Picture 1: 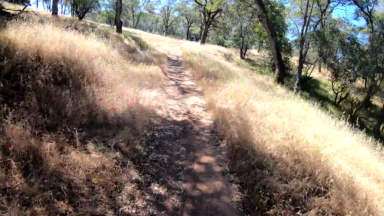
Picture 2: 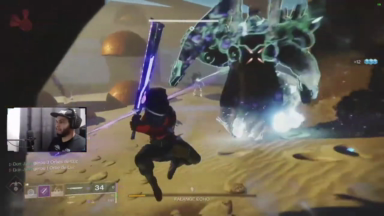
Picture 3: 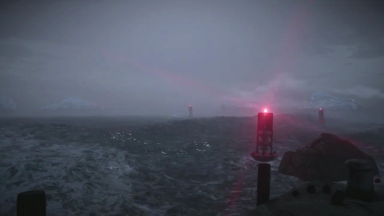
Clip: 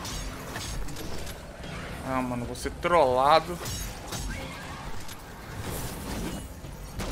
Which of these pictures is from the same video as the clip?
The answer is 2